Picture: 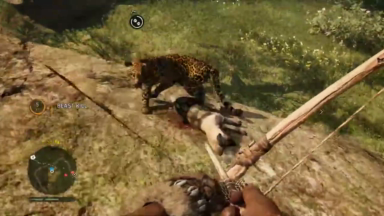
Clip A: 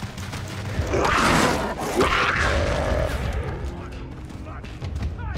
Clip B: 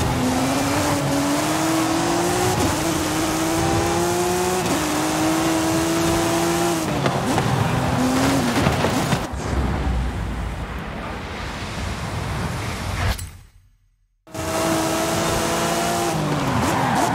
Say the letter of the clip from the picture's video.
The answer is A